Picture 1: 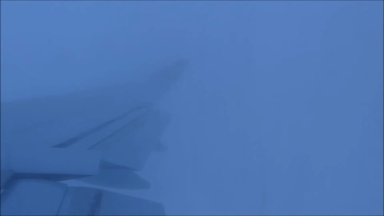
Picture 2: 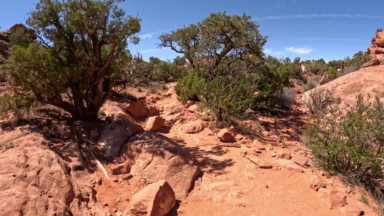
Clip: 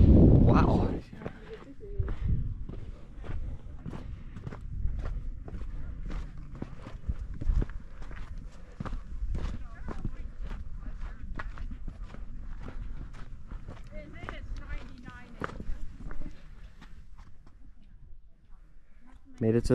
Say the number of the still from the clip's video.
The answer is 2